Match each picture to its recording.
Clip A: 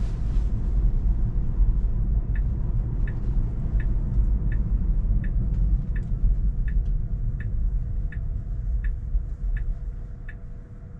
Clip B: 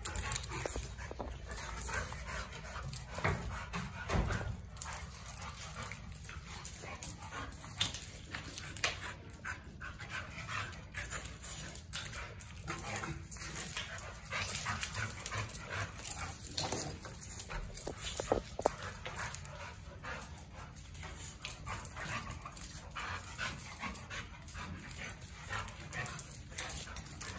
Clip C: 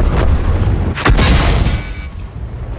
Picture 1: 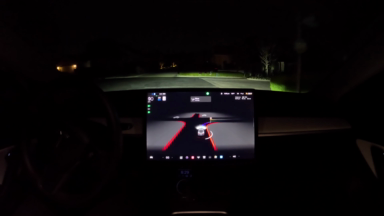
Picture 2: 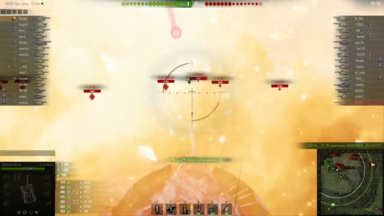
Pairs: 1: A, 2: C